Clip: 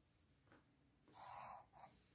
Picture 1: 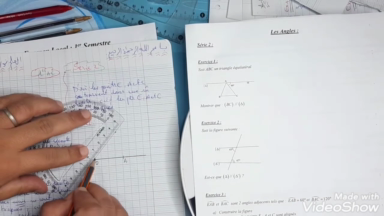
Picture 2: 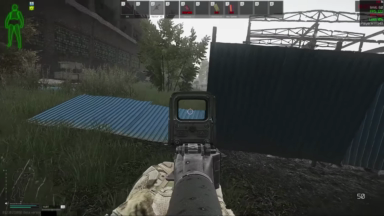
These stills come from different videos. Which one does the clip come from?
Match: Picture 1